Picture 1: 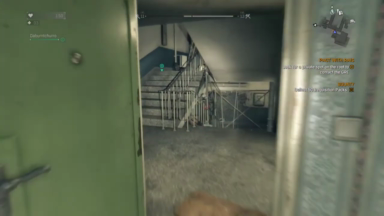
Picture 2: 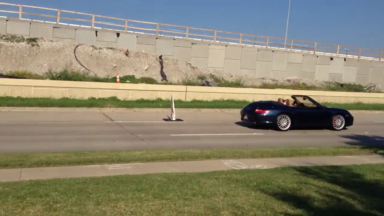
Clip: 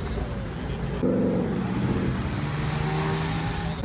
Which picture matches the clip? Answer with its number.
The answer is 2